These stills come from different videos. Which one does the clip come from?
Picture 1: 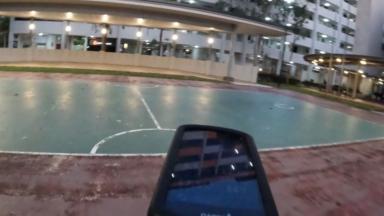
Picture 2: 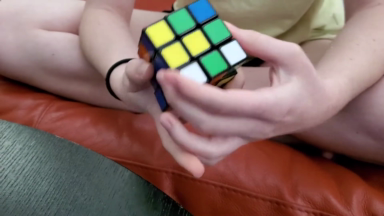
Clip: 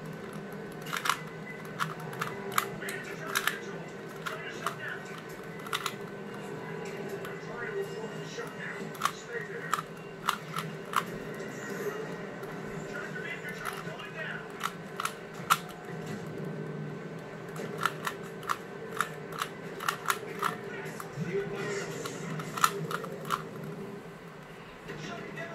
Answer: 2